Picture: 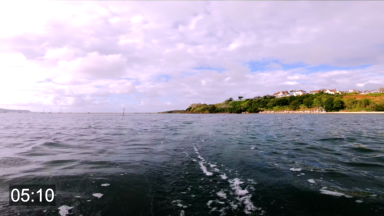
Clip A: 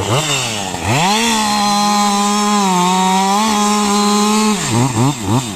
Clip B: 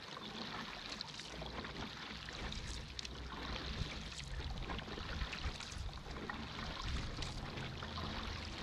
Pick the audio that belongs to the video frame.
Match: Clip B